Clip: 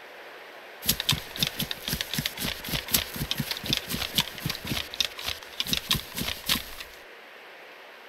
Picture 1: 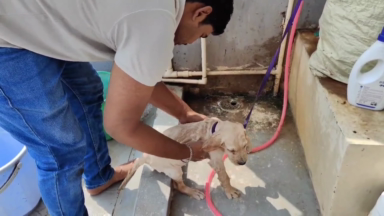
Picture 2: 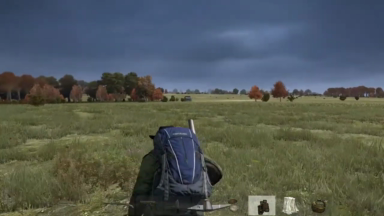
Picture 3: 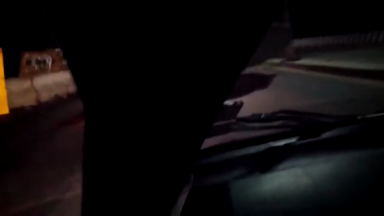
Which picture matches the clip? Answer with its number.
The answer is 2